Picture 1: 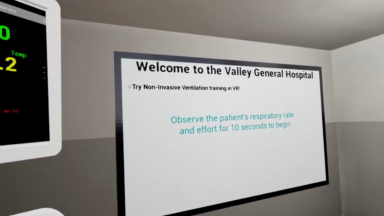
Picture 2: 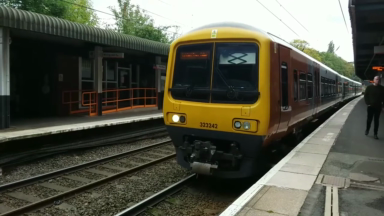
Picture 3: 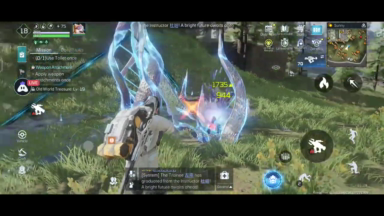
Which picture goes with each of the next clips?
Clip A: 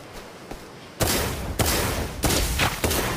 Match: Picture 3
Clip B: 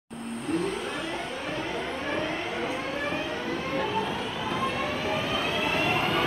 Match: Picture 2